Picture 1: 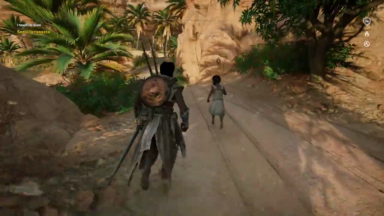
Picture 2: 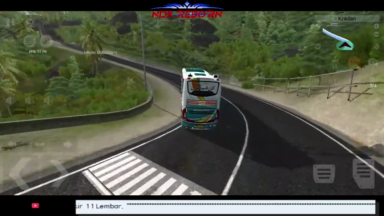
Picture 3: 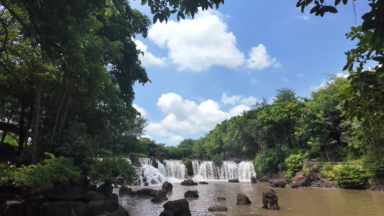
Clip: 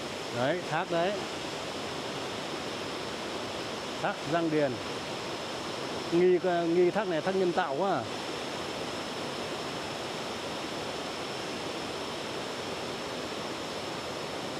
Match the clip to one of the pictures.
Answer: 3